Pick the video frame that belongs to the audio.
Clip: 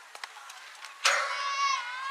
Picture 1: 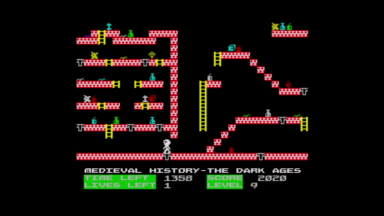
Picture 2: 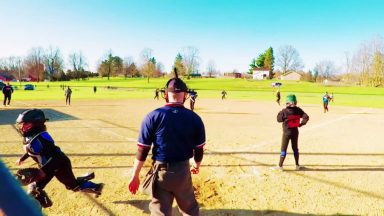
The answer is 2